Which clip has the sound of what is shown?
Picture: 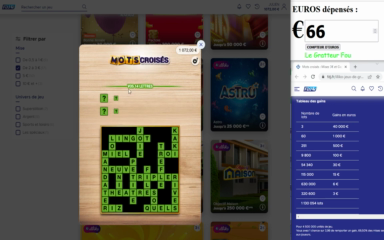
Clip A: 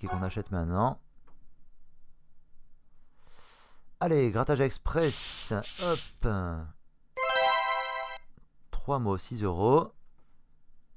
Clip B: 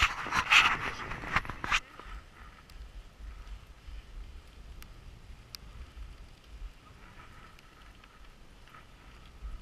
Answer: A